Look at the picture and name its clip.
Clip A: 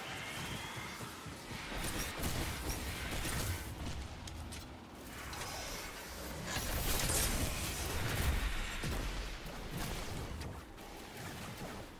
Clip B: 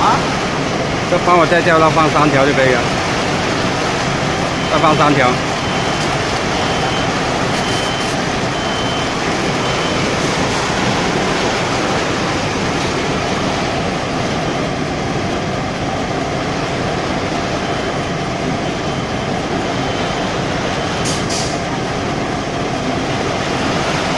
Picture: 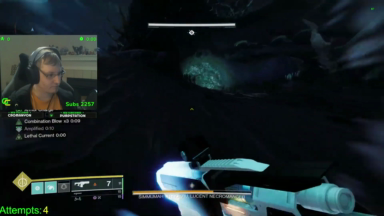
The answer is A